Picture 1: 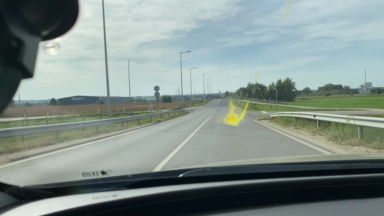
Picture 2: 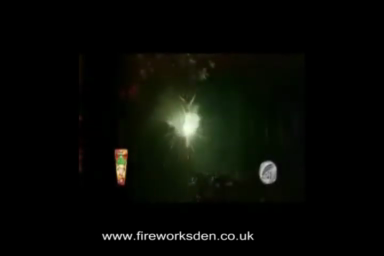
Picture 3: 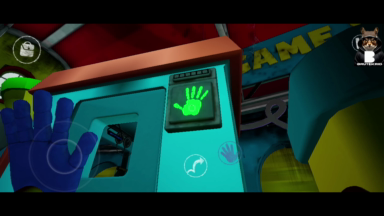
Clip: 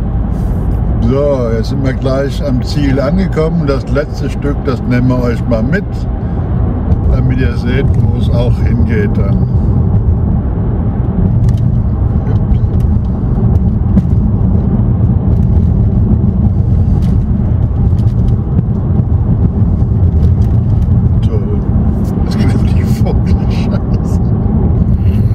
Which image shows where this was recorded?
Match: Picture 1